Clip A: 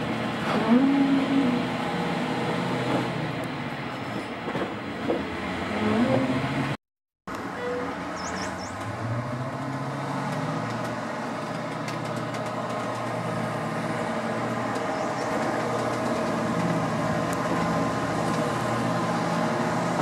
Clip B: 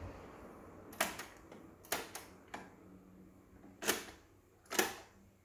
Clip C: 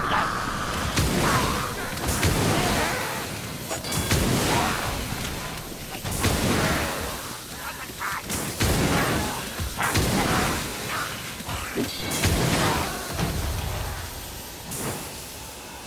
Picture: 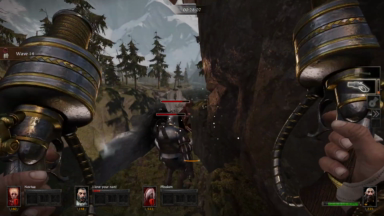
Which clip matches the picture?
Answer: C